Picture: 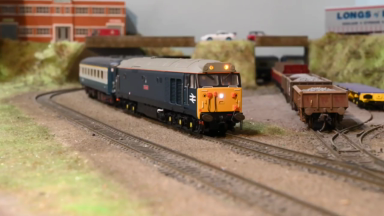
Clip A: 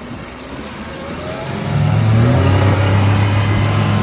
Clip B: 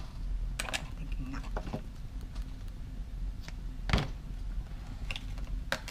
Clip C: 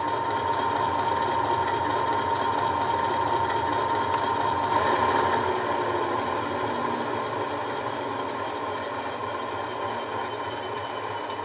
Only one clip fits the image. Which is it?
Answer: C